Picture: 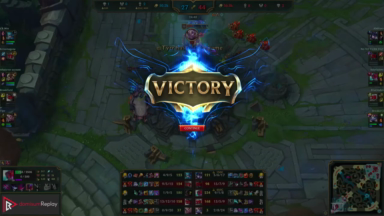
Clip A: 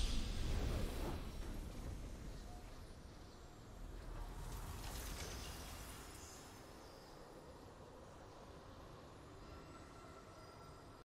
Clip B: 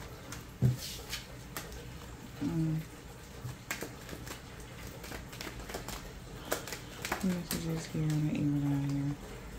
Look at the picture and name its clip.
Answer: A